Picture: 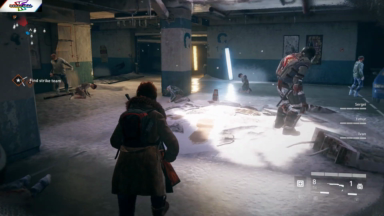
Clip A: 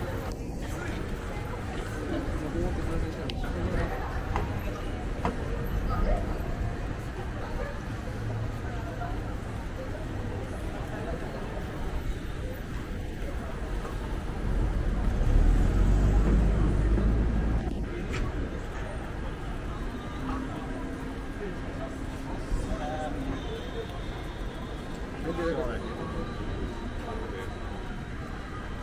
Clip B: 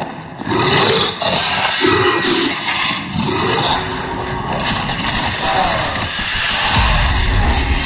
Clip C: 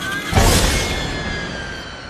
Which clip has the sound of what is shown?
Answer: B